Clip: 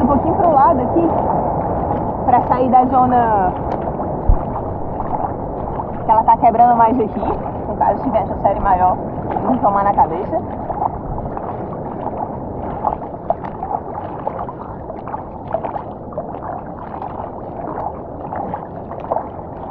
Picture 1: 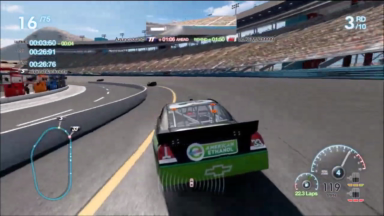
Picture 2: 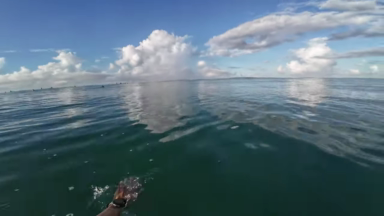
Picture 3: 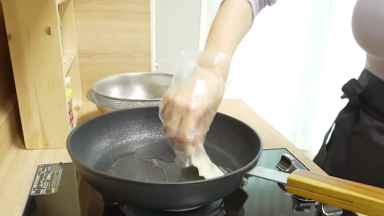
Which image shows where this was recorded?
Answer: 2